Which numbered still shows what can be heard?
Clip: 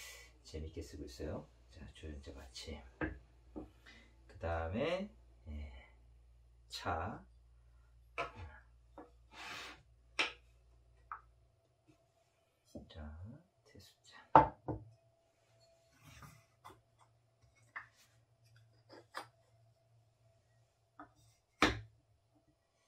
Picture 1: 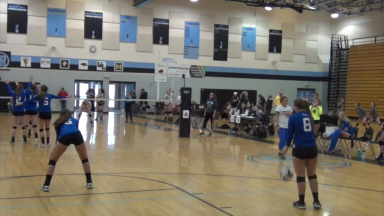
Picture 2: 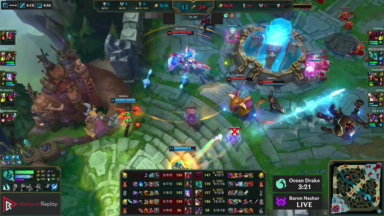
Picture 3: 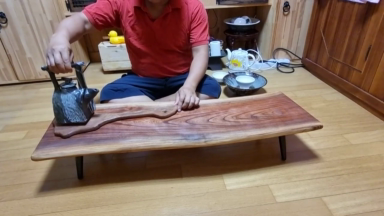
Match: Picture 3